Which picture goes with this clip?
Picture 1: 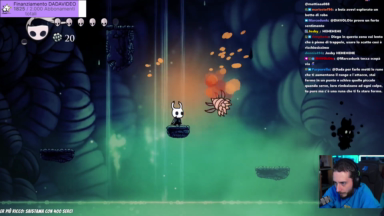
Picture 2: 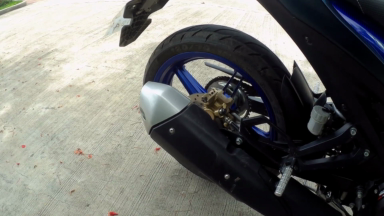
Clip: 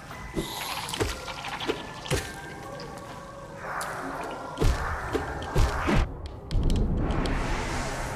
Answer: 1